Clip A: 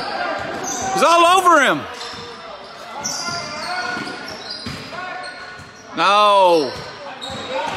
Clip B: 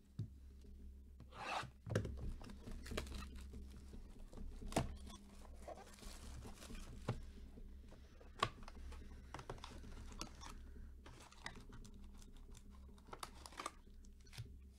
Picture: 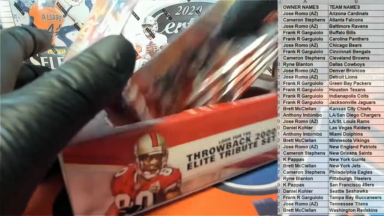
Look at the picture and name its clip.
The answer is B